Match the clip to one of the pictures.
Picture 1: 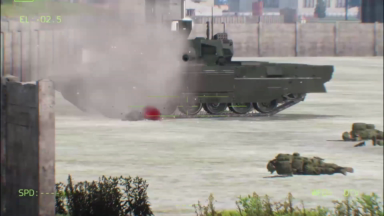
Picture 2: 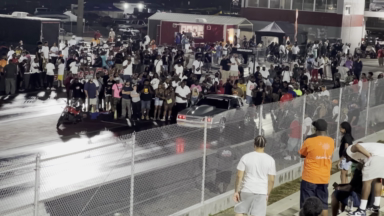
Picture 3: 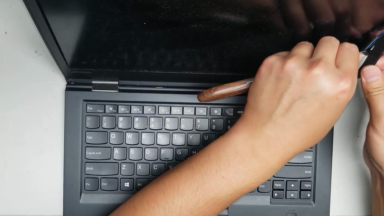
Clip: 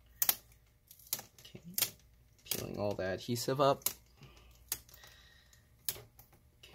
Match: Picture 3